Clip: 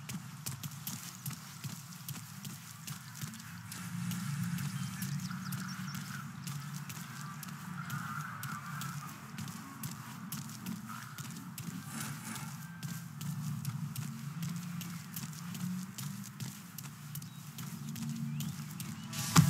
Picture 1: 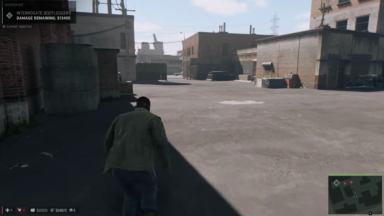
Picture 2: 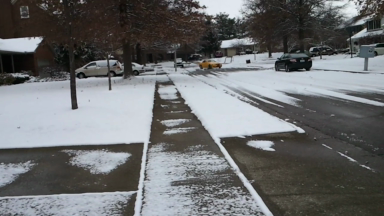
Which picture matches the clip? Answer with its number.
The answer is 1